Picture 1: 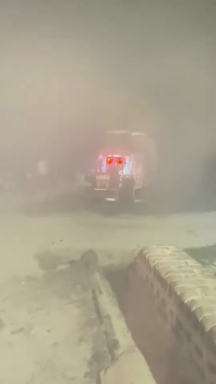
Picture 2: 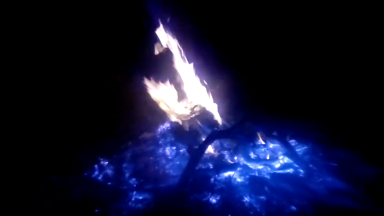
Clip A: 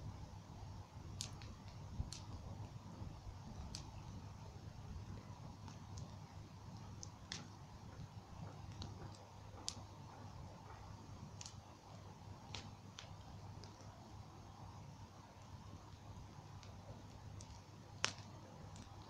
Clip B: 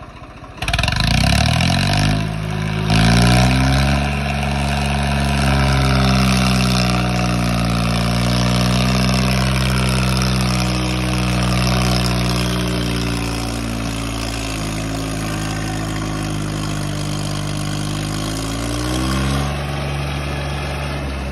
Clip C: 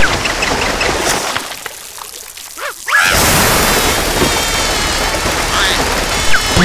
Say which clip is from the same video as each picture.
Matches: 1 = B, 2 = A